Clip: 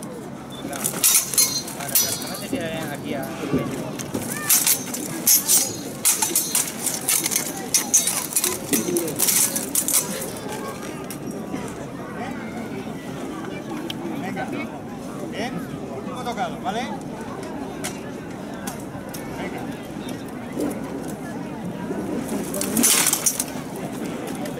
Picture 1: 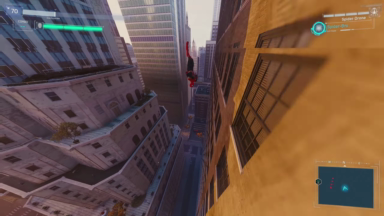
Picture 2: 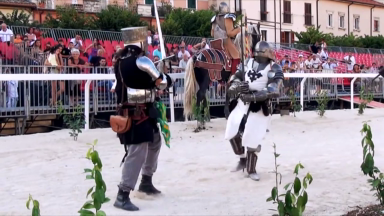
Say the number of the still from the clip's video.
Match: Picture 2